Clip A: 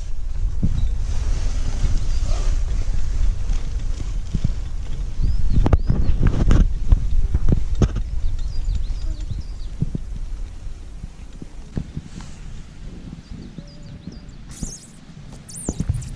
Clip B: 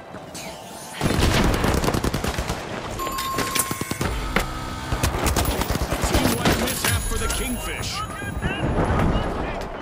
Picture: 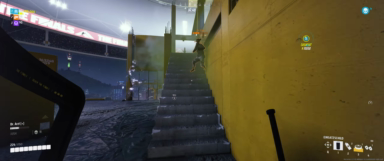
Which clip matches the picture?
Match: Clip B